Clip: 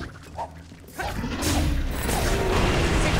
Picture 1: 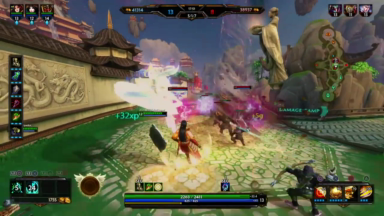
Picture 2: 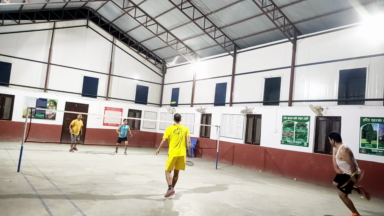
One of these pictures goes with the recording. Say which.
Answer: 1